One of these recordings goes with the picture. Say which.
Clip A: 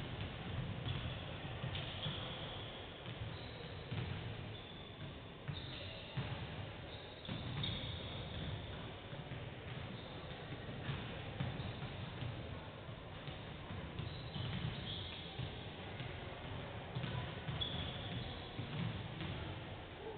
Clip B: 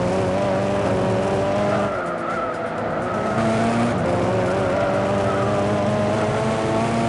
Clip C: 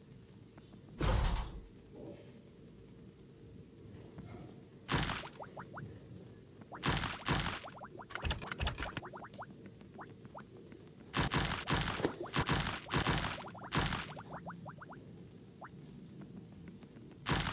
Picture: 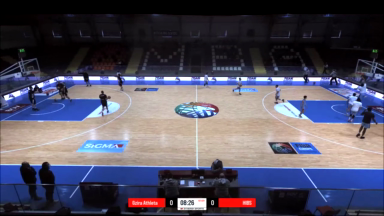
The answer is A